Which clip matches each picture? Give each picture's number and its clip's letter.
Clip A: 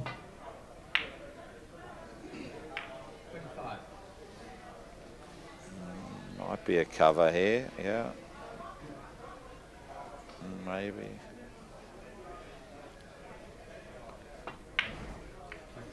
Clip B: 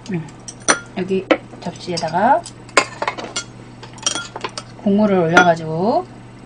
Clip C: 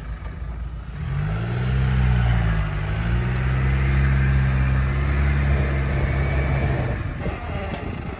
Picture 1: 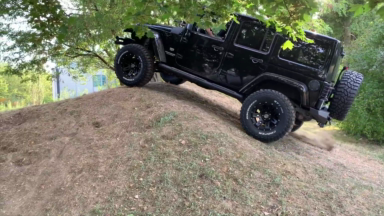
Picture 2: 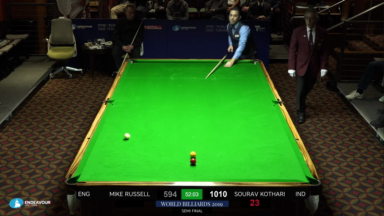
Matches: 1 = C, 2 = A